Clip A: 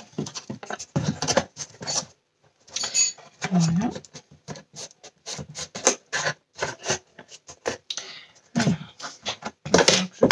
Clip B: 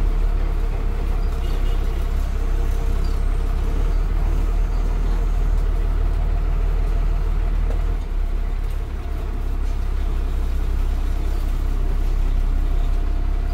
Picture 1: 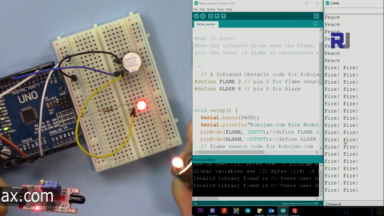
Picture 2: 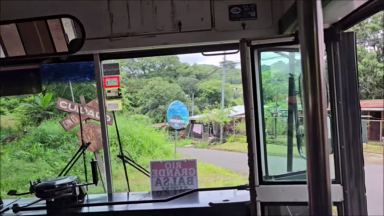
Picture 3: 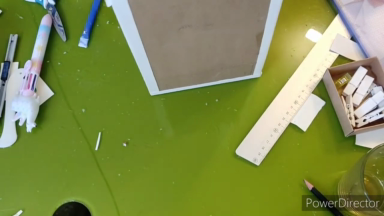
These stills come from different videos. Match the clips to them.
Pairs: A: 3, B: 2